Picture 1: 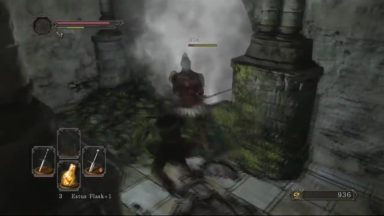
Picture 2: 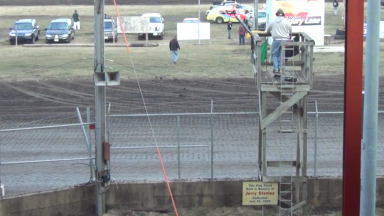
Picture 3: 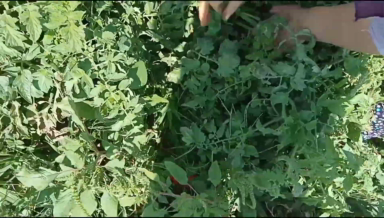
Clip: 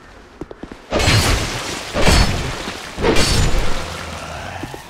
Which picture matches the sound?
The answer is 1